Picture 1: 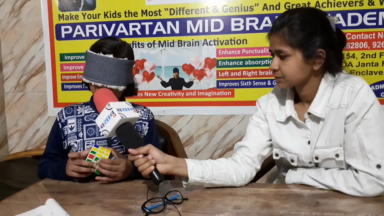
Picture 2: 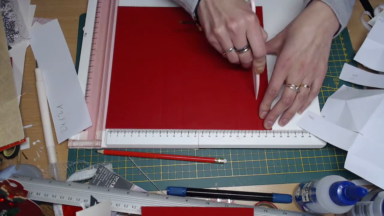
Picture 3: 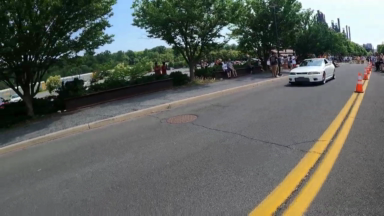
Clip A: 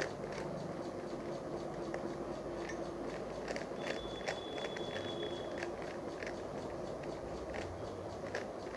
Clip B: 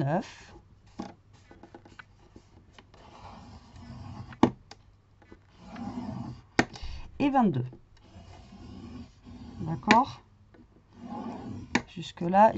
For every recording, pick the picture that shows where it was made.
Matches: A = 1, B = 2